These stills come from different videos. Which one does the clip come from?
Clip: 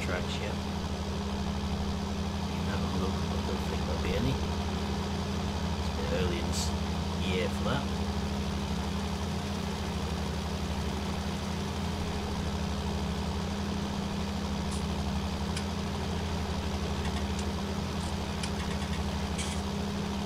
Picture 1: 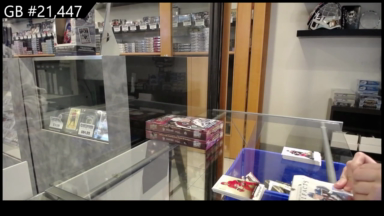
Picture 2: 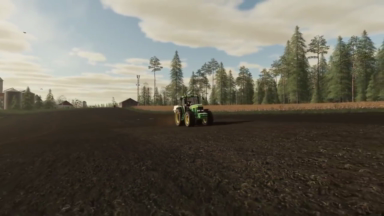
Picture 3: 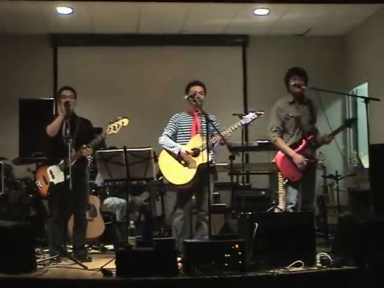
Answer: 2